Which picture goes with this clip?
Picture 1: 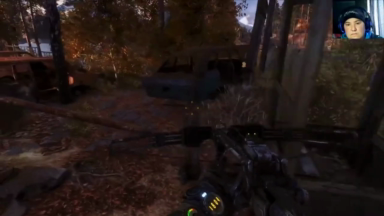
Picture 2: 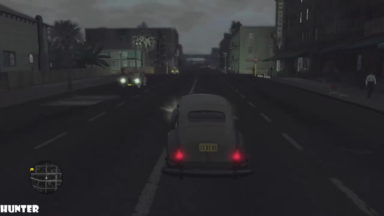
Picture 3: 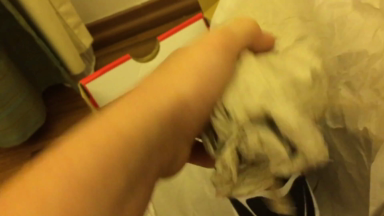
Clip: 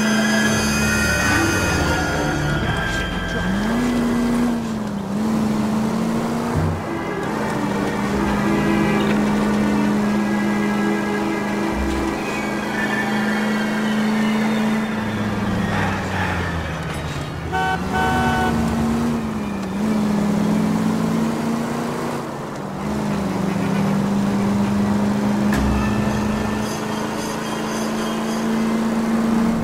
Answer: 2